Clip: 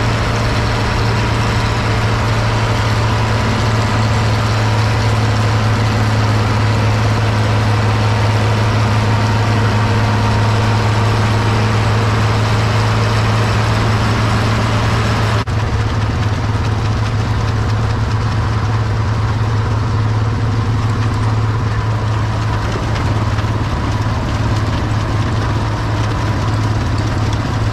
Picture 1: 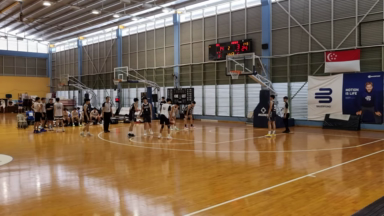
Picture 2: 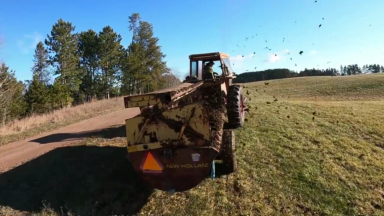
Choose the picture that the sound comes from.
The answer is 2